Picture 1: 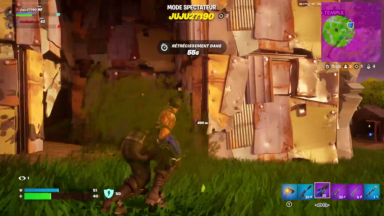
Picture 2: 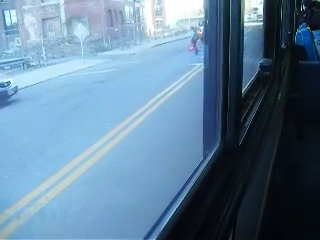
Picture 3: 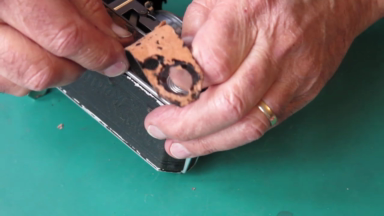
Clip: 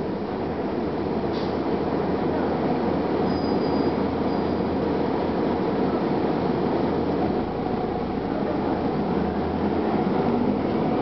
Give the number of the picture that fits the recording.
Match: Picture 2